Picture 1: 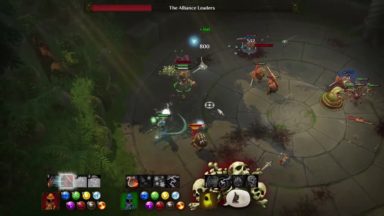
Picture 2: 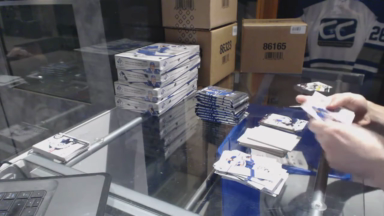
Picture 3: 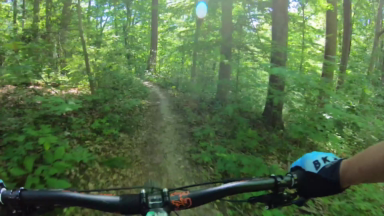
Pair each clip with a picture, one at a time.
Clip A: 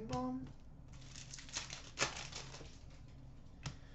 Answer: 2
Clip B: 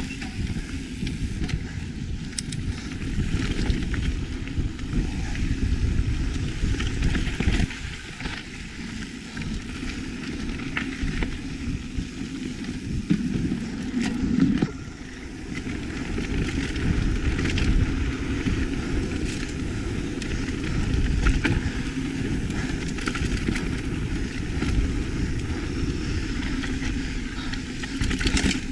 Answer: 3